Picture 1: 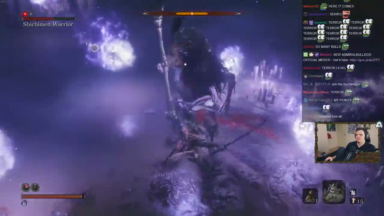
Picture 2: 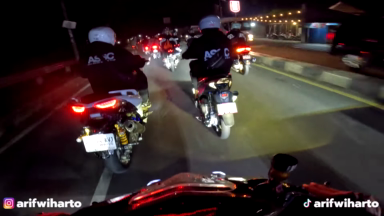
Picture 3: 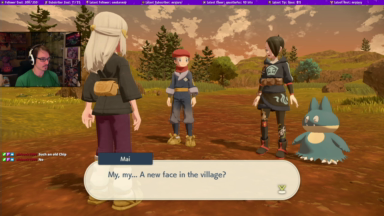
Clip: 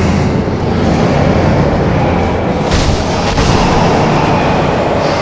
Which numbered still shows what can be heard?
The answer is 1